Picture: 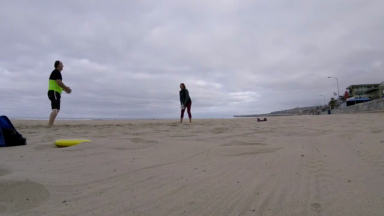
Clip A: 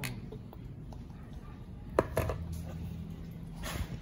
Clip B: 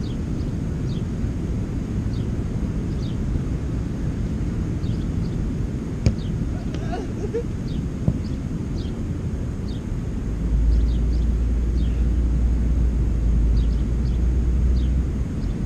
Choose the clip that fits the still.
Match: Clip B